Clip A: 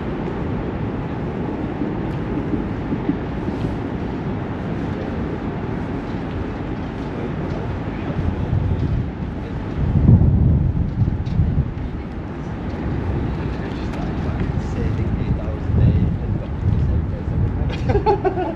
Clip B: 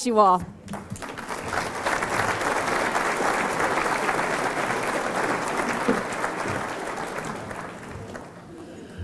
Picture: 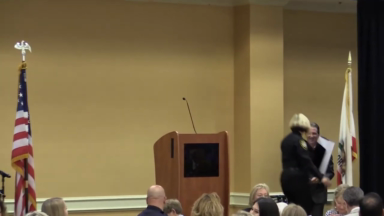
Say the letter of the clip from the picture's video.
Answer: B